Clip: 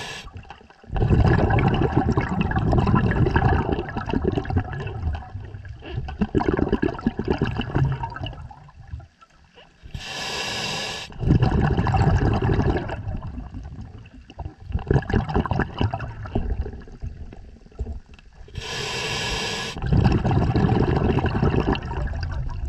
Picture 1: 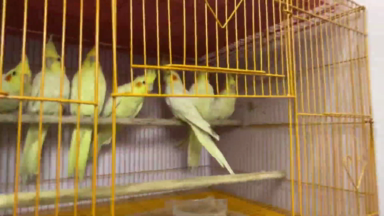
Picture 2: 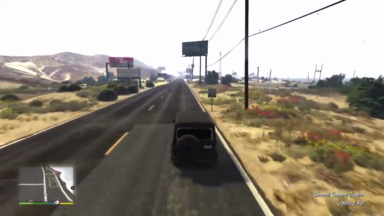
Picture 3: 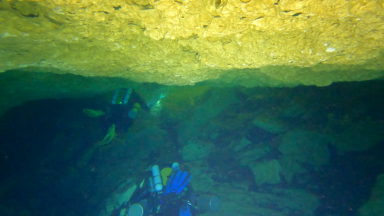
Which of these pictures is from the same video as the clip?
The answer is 3